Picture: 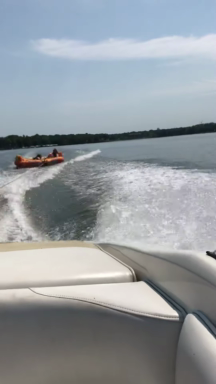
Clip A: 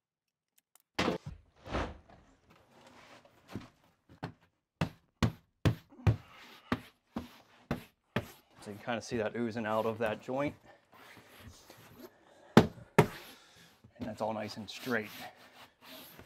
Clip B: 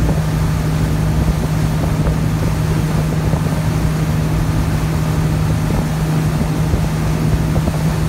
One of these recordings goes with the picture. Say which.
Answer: B